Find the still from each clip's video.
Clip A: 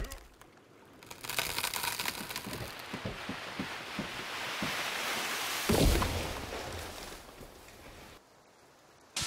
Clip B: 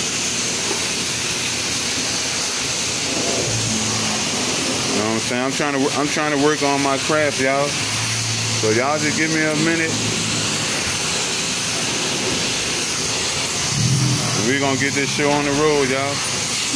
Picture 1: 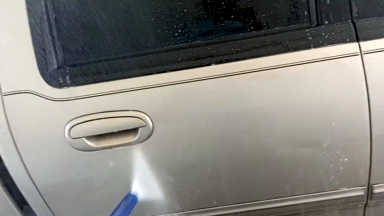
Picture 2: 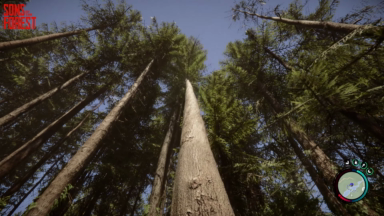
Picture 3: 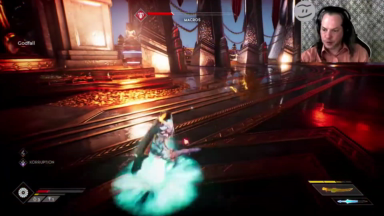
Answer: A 2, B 1